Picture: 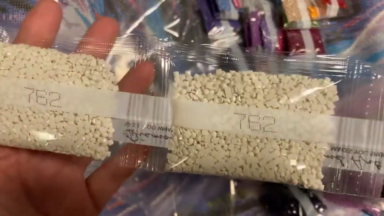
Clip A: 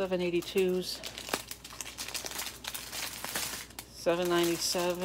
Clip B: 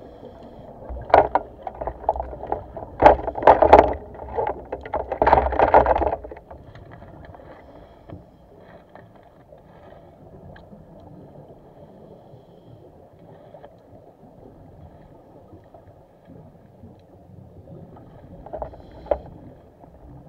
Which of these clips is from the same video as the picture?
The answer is A